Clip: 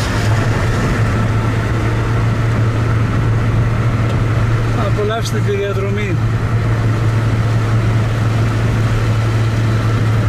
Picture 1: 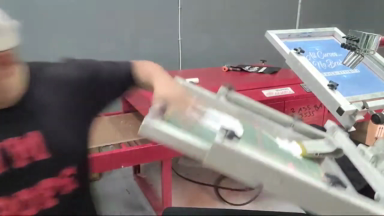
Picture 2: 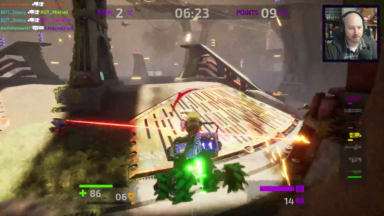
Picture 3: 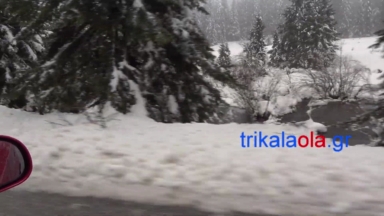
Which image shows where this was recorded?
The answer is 3